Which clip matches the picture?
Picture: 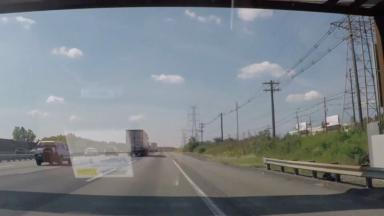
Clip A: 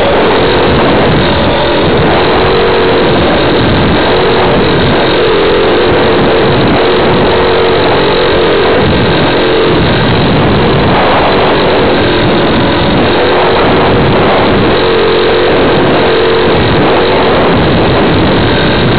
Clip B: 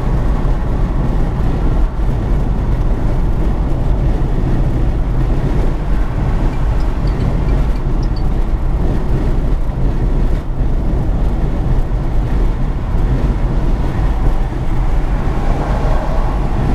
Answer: B